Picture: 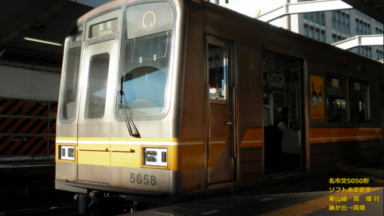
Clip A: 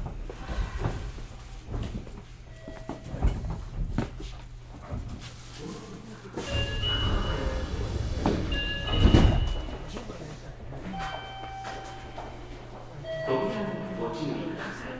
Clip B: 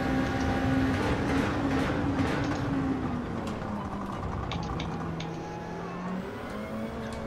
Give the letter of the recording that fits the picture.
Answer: A